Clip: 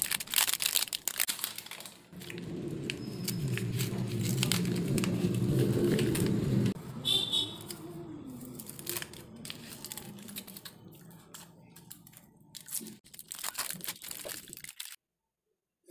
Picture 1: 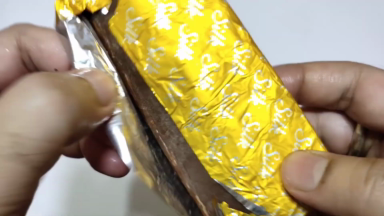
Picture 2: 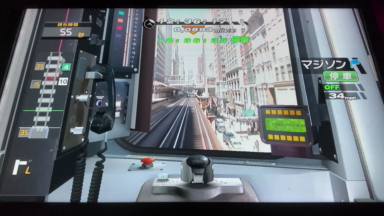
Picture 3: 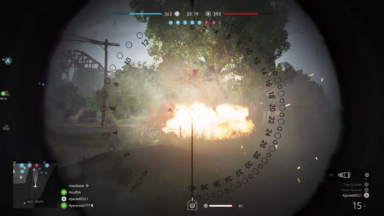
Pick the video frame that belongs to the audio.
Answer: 1